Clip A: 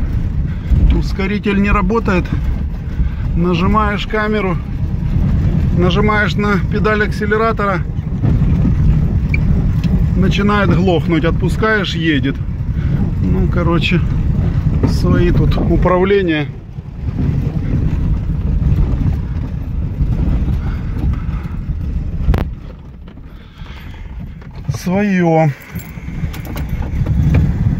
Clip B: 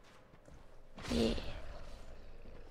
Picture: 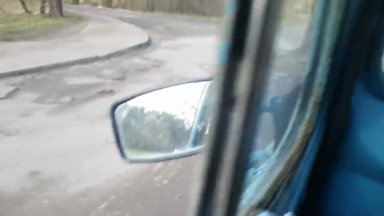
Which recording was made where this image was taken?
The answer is A